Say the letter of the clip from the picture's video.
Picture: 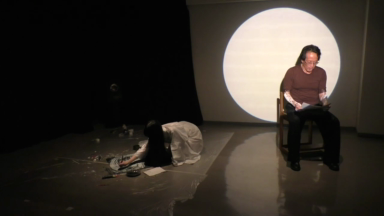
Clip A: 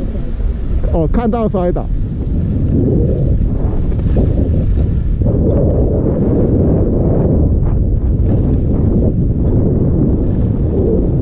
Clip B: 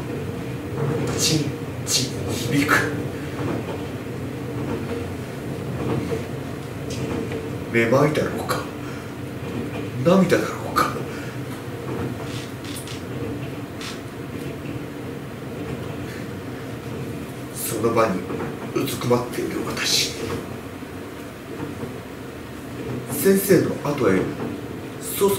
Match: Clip B